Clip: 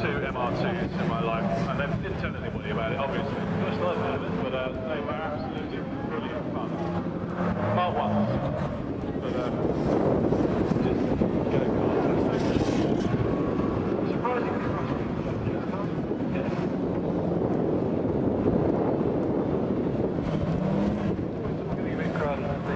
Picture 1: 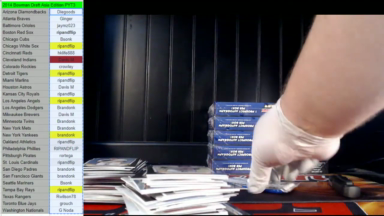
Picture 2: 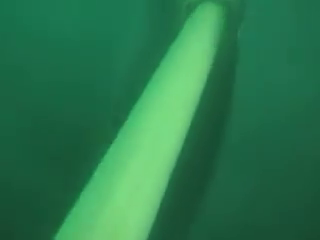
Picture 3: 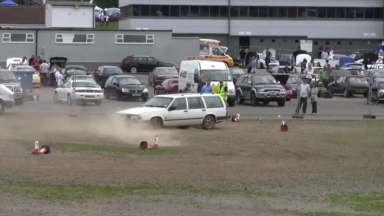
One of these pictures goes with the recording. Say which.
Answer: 3